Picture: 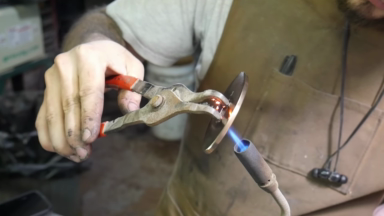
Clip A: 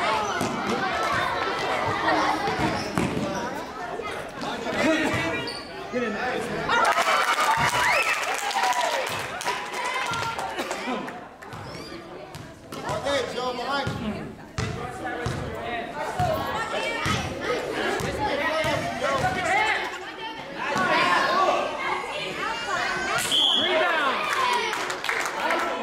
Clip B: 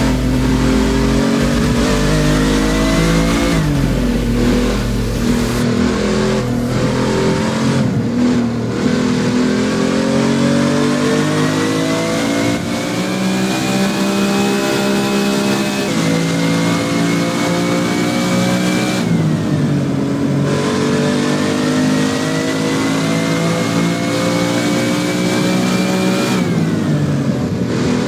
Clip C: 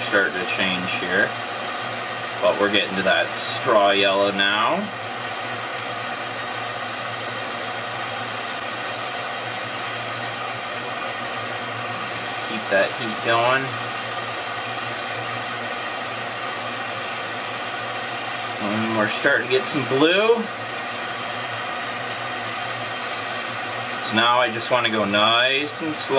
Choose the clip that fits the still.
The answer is C